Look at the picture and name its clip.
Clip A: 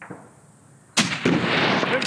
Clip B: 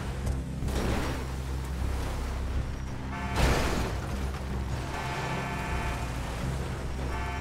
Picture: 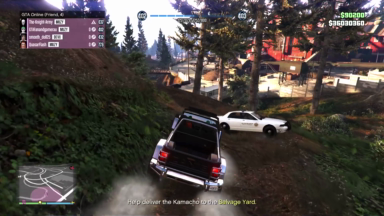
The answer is B